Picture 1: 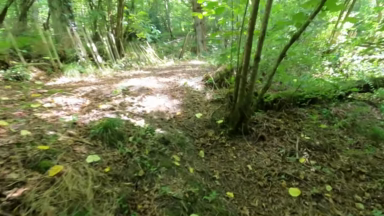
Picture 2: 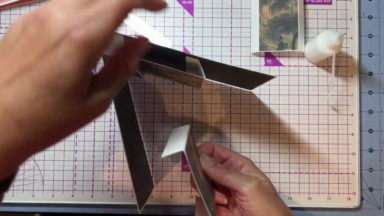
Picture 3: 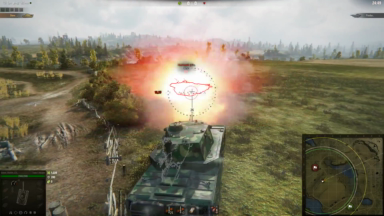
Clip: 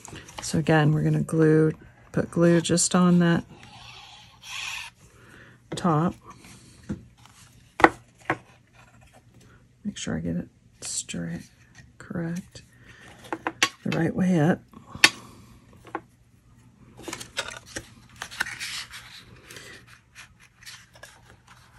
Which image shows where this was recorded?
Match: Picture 2